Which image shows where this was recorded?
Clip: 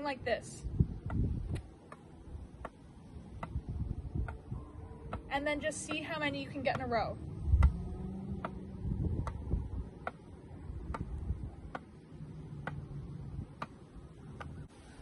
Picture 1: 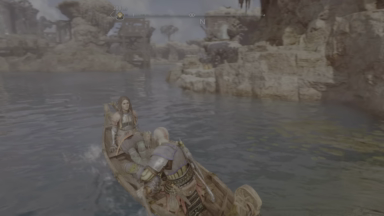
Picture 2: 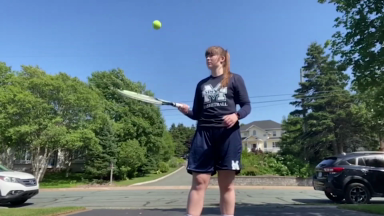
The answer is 2